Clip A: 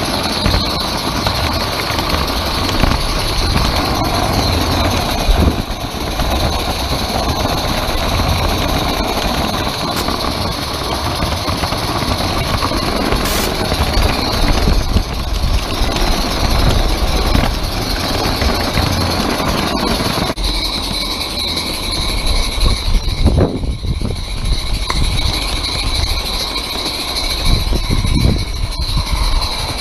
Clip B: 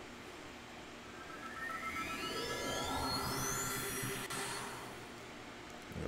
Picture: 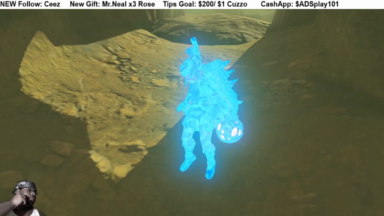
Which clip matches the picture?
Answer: B